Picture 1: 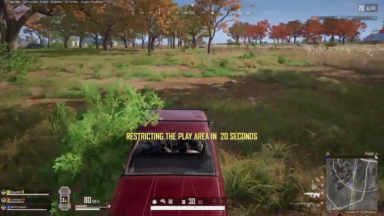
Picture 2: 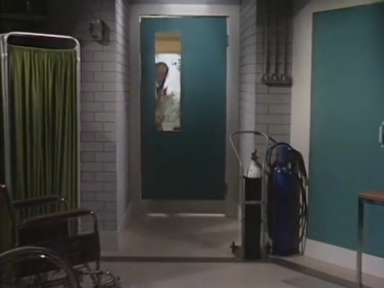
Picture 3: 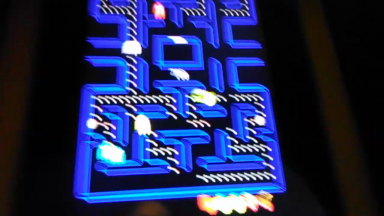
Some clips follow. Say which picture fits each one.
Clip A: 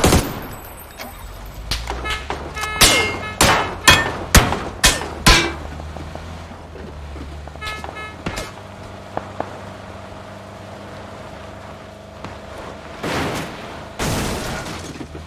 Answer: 1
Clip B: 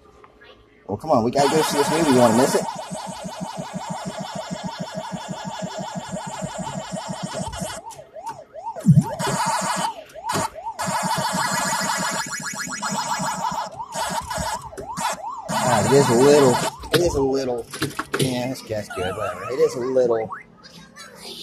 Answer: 3